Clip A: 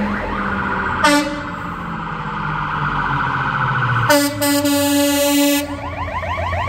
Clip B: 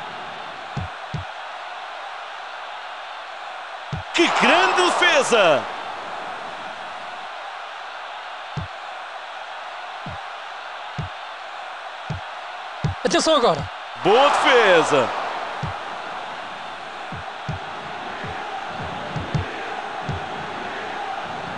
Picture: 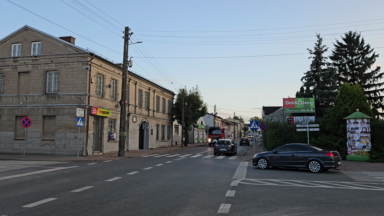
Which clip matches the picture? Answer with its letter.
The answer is A